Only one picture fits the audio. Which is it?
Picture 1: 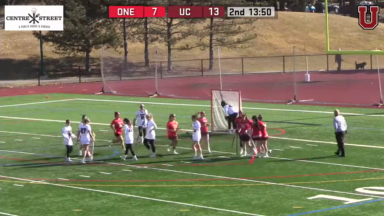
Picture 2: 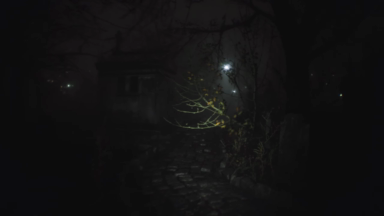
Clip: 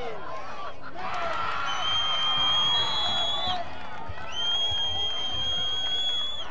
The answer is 1